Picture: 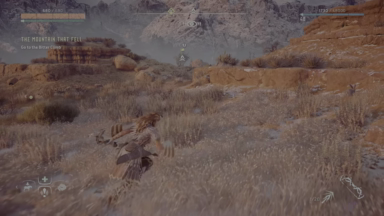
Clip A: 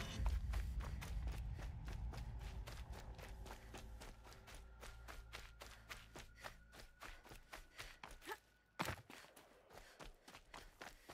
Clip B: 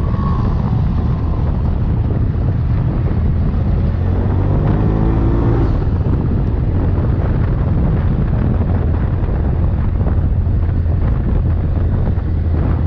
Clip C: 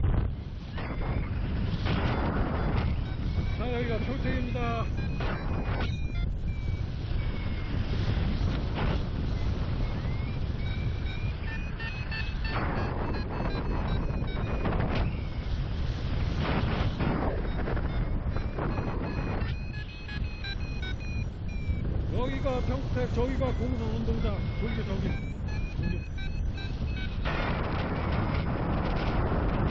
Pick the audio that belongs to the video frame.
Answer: A